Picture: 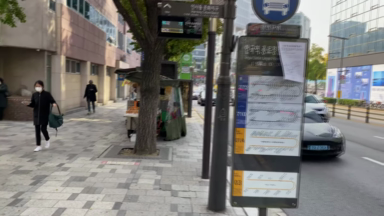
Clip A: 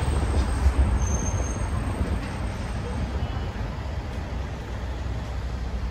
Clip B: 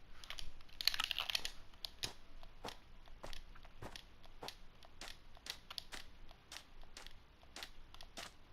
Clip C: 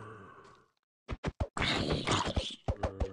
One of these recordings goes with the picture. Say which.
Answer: A